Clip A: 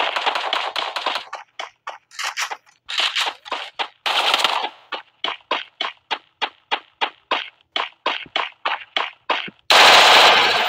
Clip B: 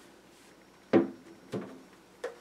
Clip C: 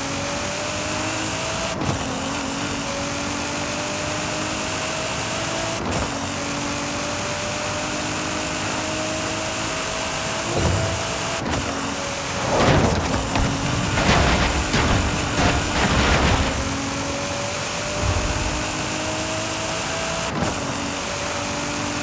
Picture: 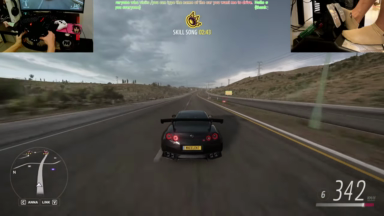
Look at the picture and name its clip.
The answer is C